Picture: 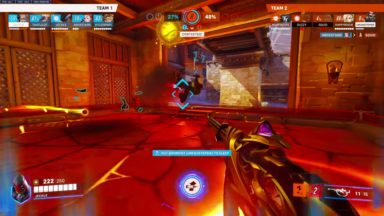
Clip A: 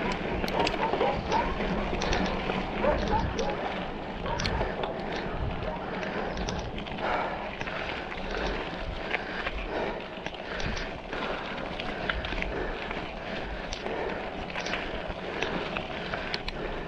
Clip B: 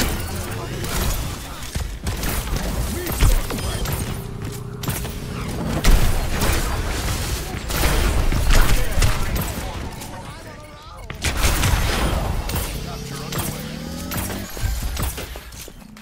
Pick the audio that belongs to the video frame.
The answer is B